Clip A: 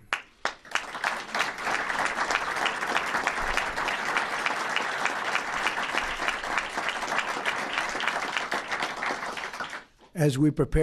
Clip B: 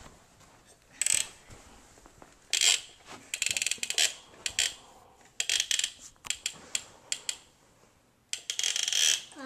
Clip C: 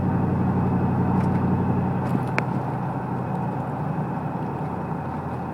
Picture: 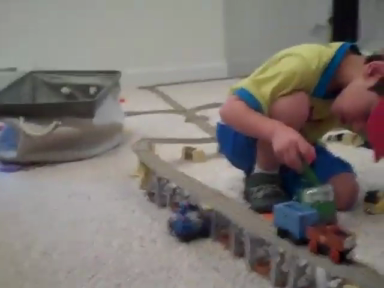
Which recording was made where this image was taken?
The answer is B